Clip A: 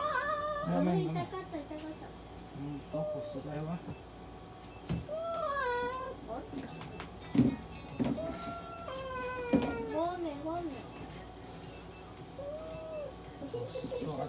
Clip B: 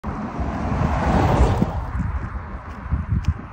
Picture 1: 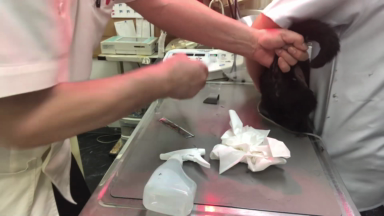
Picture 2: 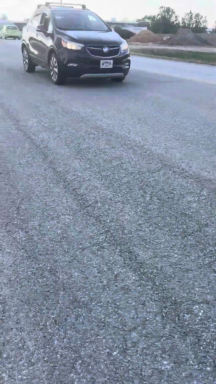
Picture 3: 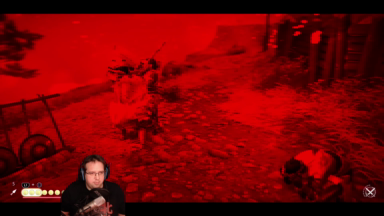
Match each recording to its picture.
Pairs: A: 1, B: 2